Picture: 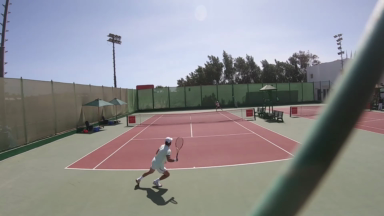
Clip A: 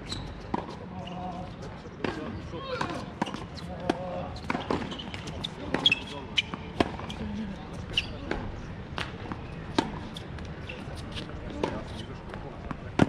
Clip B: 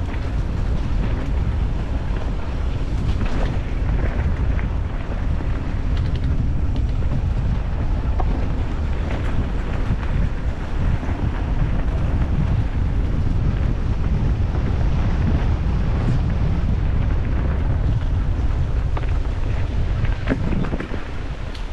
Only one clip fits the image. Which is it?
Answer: A